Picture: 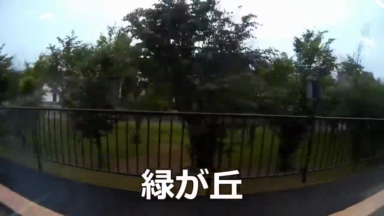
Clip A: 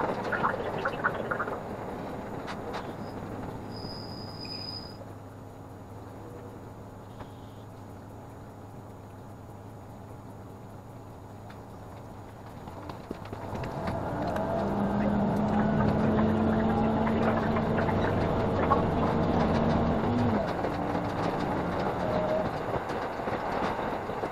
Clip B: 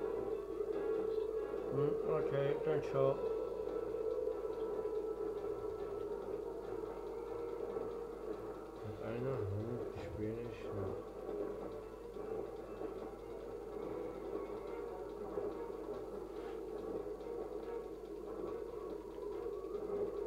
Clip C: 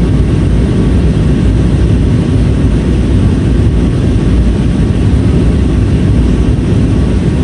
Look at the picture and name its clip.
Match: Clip A